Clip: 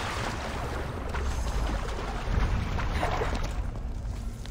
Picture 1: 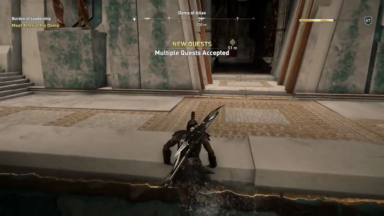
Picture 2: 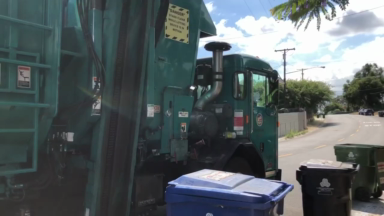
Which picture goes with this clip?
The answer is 1